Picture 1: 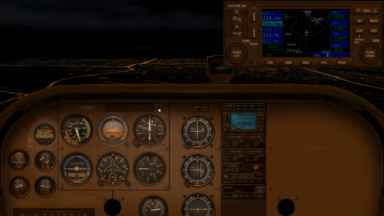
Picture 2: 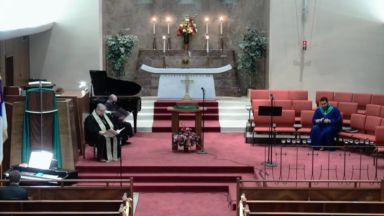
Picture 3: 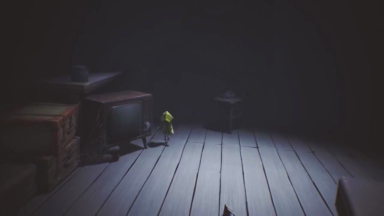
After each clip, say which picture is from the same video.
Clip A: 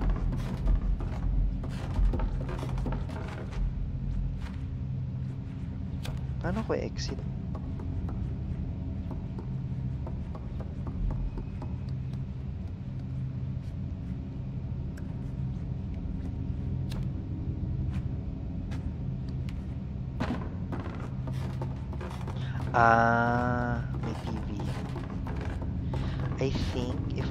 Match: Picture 3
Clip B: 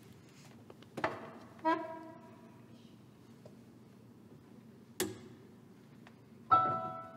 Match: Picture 2